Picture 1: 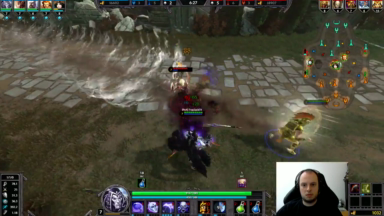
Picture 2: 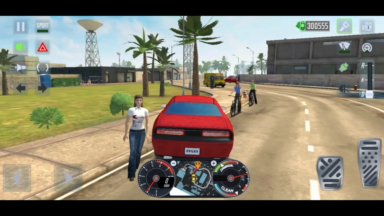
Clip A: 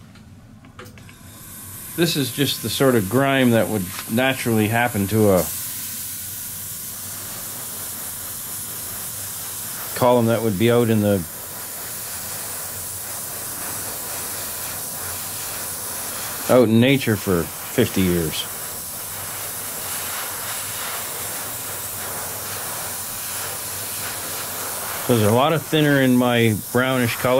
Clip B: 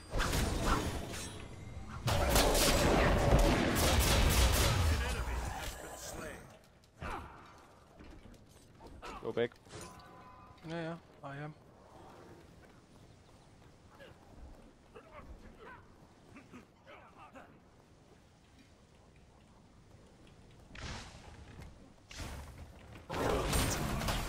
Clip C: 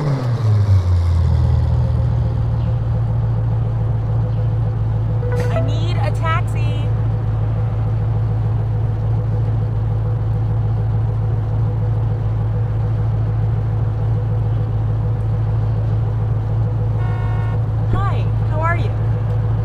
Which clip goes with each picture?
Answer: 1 B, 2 C